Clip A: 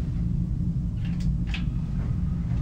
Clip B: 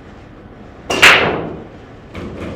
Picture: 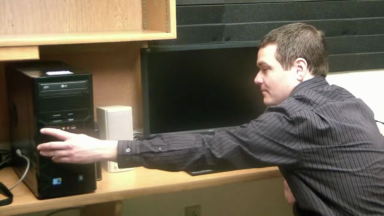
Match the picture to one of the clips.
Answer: A